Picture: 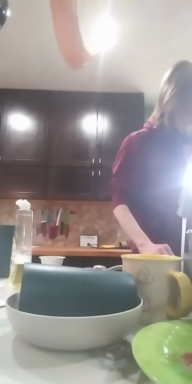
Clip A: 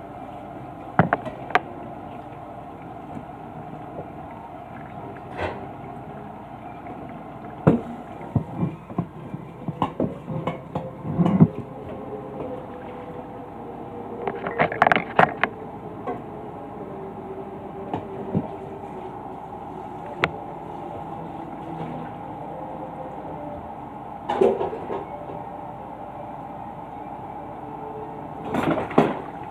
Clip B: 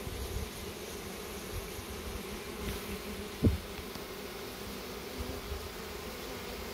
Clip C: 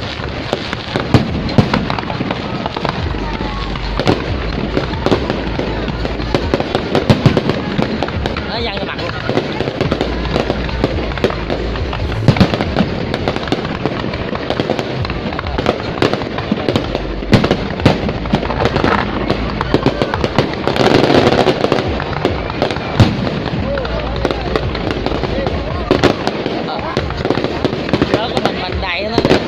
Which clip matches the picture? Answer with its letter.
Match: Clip A